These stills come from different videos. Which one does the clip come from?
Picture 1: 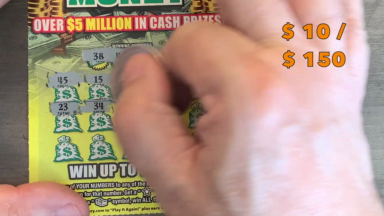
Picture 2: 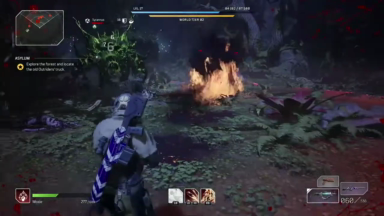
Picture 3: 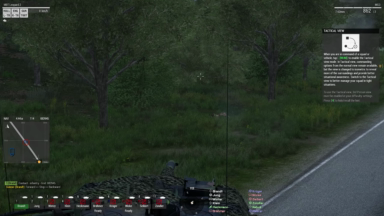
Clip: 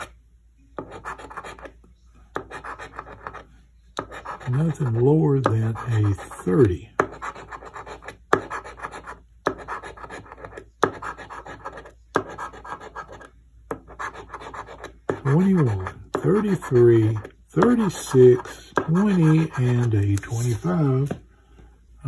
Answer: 1